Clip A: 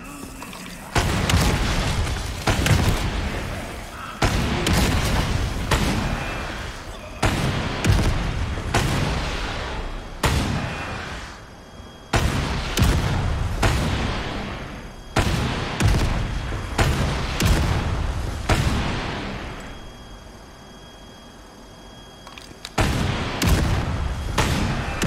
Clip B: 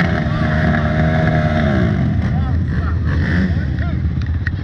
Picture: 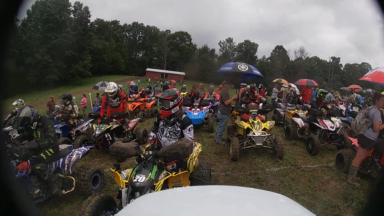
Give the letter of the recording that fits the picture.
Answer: B